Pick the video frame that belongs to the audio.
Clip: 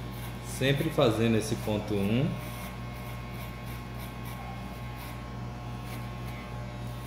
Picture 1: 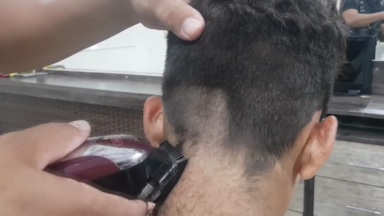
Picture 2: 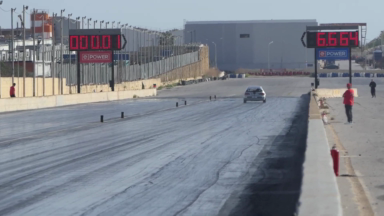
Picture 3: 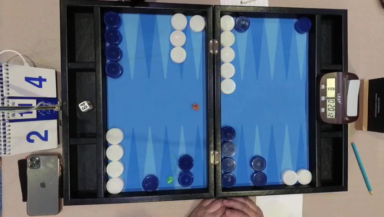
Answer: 1